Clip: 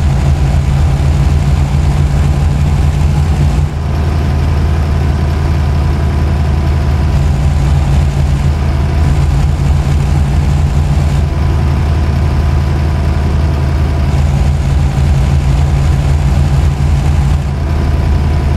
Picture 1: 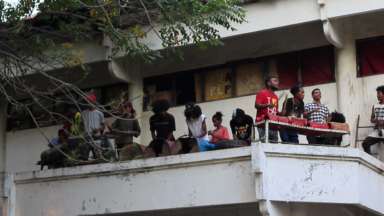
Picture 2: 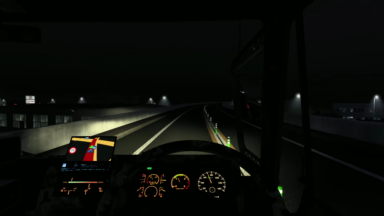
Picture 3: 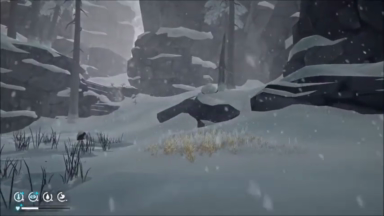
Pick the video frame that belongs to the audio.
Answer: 2